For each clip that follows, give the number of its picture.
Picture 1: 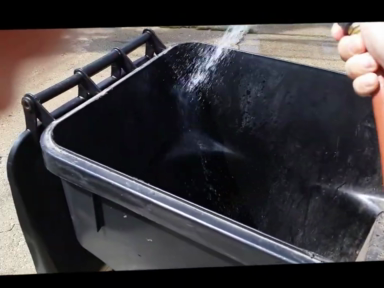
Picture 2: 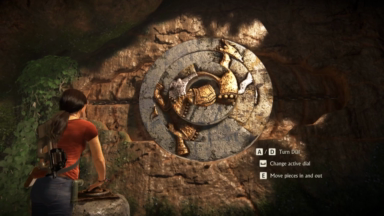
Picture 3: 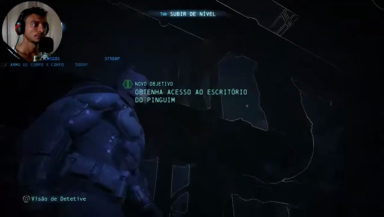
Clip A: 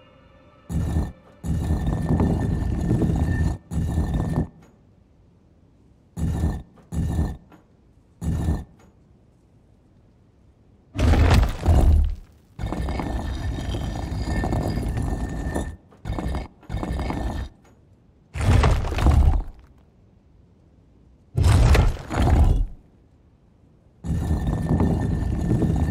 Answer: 2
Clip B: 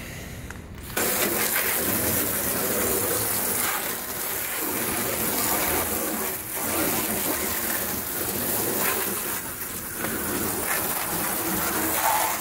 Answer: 1